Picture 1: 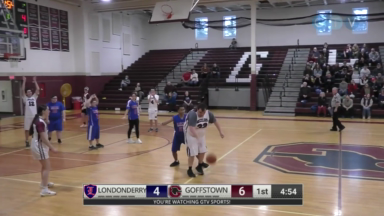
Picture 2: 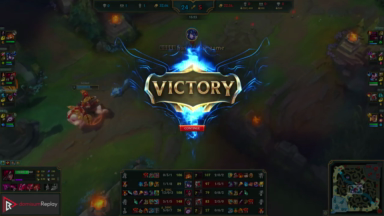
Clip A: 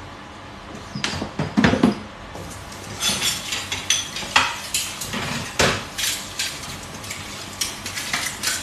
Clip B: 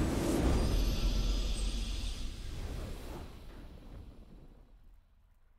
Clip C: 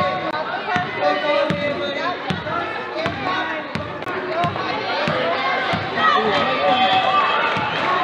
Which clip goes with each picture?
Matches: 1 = C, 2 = B